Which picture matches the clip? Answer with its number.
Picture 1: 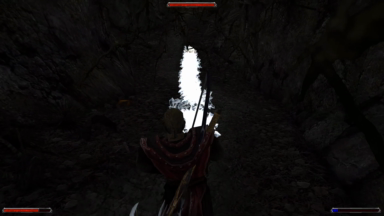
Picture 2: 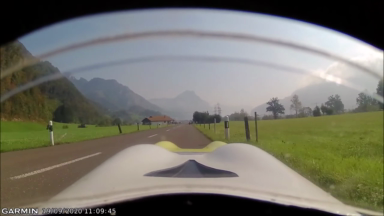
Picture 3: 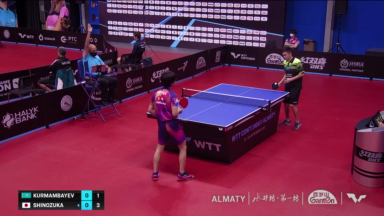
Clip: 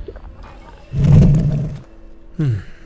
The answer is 1